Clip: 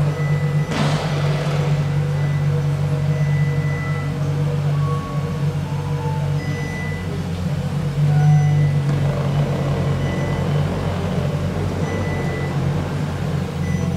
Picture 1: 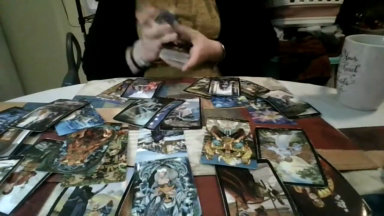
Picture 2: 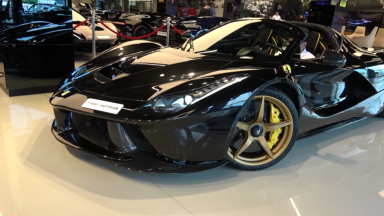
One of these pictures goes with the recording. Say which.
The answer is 2